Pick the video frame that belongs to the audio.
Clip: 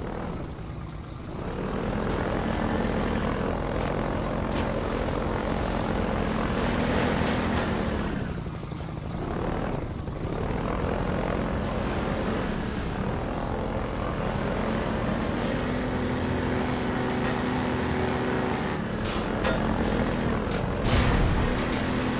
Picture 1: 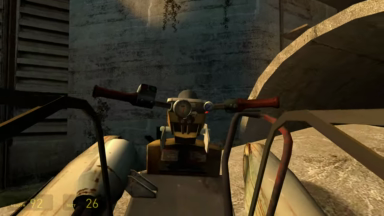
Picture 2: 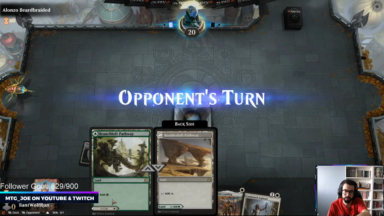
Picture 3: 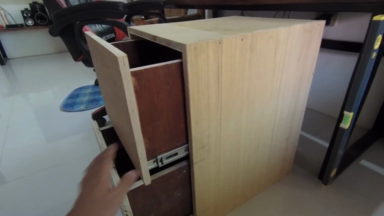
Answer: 1